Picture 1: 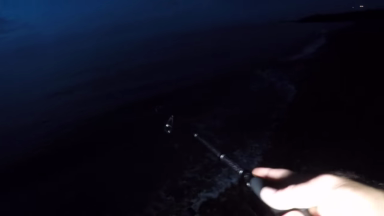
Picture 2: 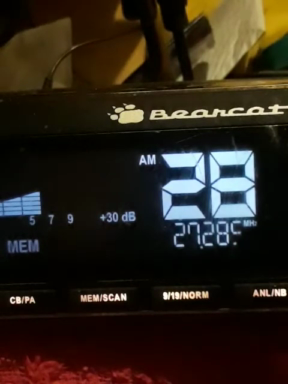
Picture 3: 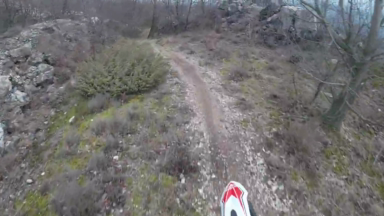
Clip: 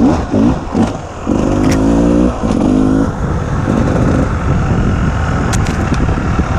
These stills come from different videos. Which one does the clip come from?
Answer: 3